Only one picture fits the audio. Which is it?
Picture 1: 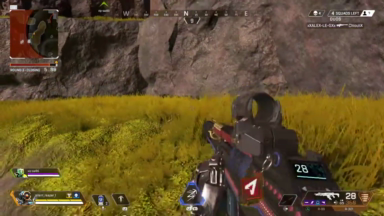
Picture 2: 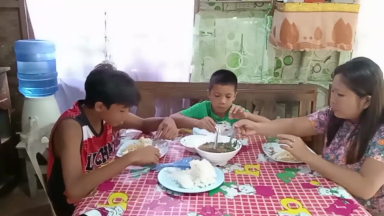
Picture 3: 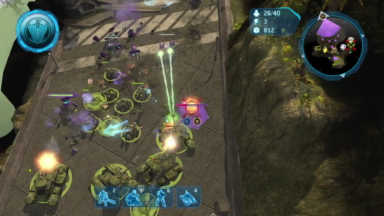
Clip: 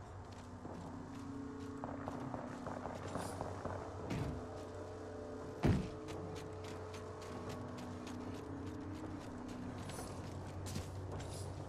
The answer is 1